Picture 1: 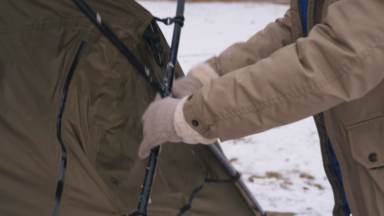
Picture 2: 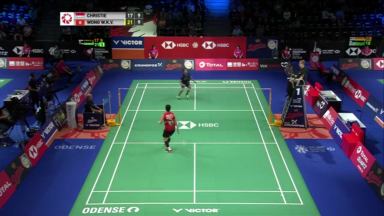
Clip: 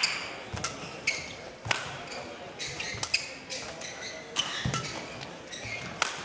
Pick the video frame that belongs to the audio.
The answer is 2